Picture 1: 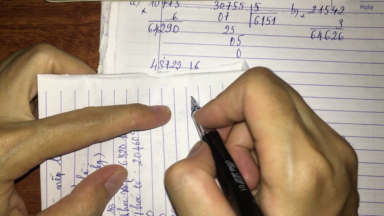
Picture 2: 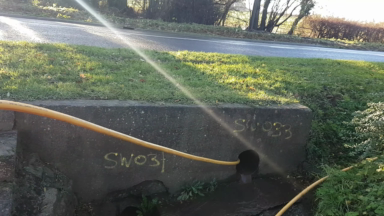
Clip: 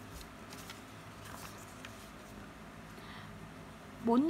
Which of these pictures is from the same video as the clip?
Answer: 1